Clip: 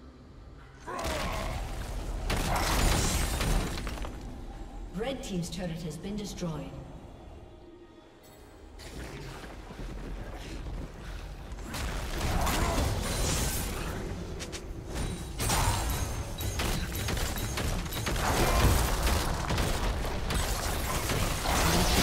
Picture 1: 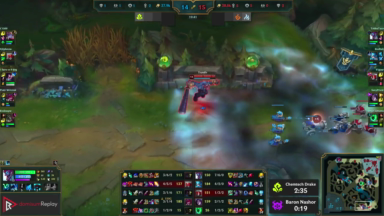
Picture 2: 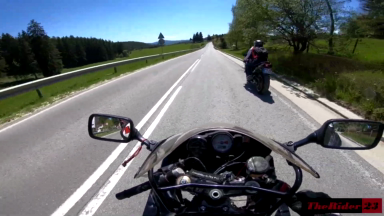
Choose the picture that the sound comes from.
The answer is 1